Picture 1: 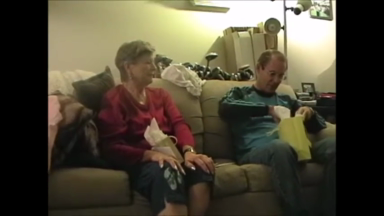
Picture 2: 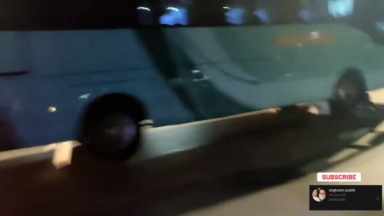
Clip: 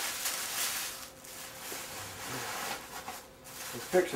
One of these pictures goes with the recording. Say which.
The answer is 1